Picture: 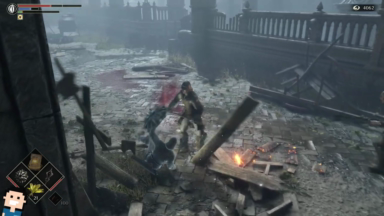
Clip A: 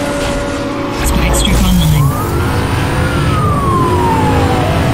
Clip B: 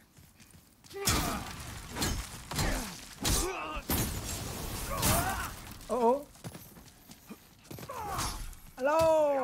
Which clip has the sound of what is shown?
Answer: B